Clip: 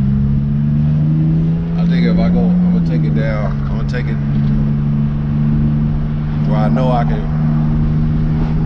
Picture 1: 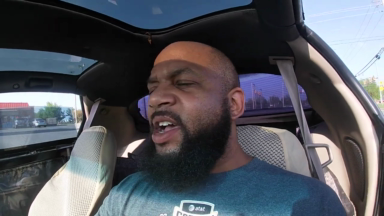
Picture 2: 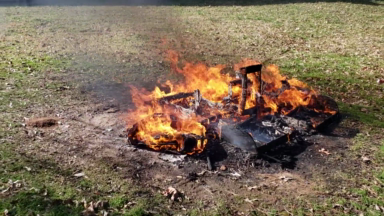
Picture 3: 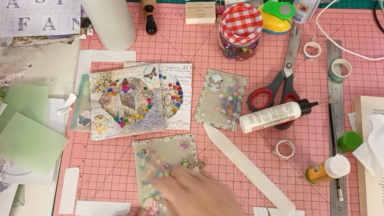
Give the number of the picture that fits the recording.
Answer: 1